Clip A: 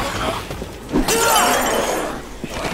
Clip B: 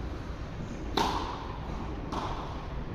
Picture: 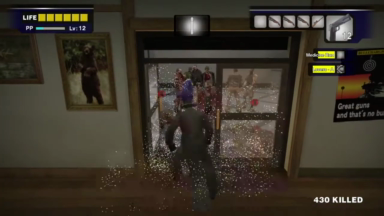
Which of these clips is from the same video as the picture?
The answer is A